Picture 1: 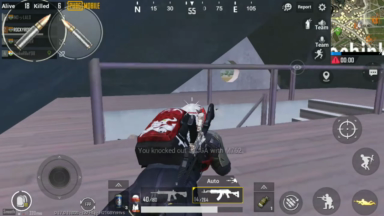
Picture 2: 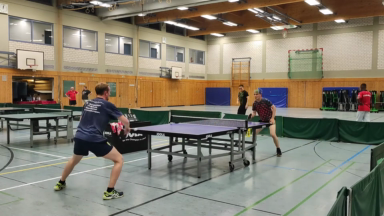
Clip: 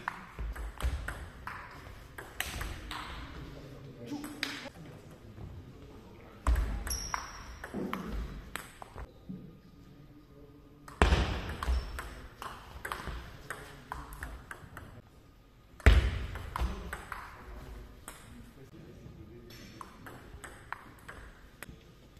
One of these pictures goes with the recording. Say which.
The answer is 2